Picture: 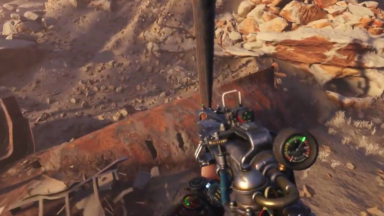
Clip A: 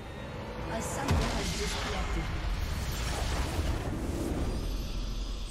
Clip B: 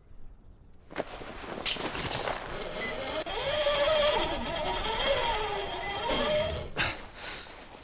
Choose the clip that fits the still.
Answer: B